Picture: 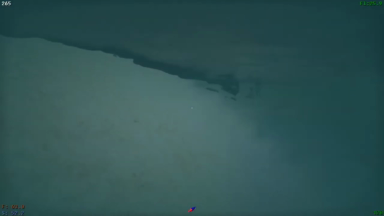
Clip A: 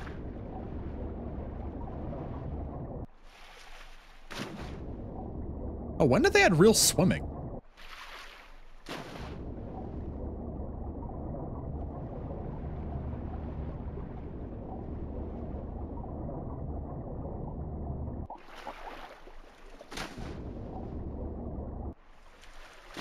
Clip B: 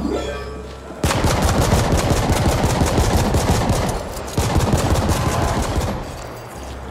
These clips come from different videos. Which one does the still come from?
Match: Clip A